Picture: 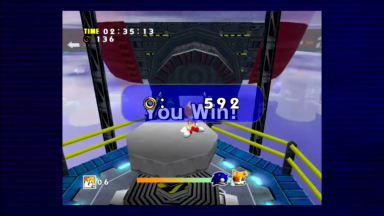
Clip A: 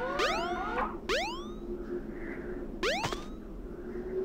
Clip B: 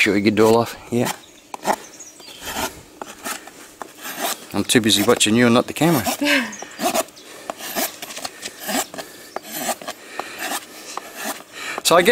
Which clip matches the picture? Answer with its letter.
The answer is A